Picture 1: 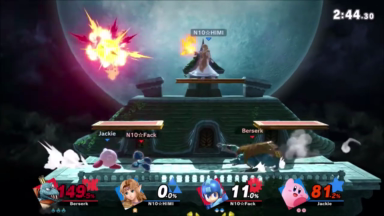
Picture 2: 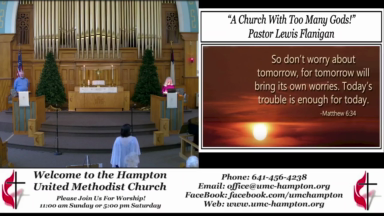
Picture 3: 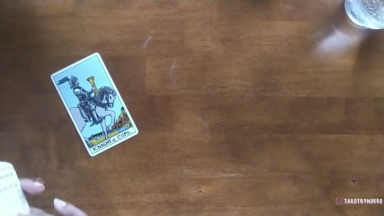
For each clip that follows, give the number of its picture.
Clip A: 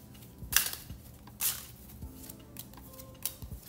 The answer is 3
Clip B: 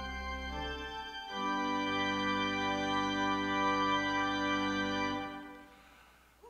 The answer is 2